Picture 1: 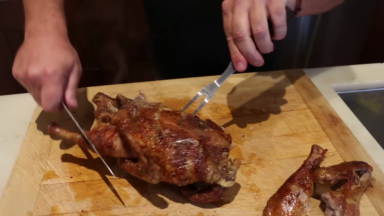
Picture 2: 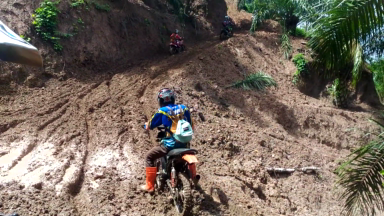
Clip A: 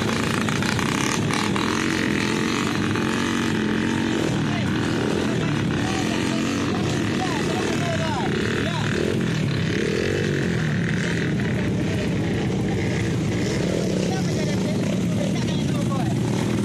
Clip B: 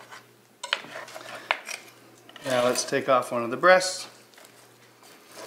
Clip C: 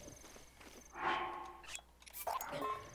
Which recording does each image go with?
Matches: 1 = B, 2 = A